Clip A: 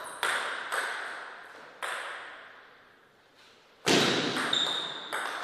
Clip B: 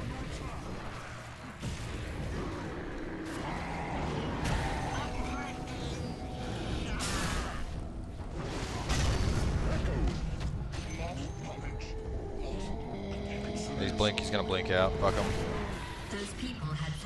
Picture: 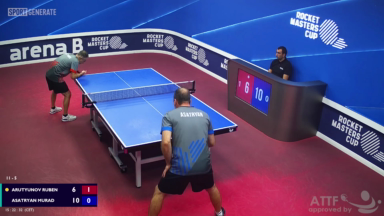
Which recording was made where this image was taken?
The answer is A